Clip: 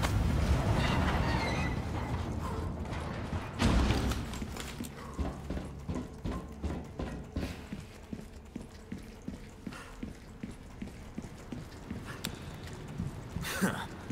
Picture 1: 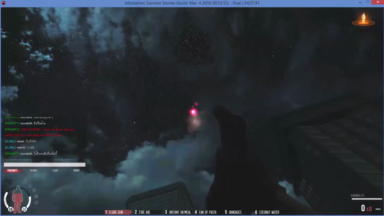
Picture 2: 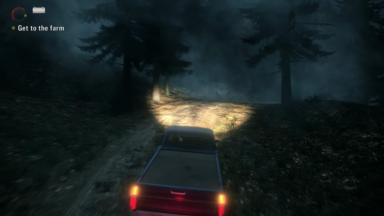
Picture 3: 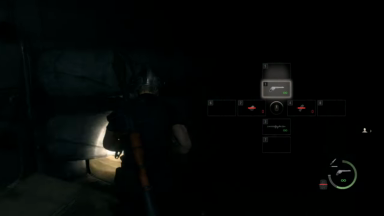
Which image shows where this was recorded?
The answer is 3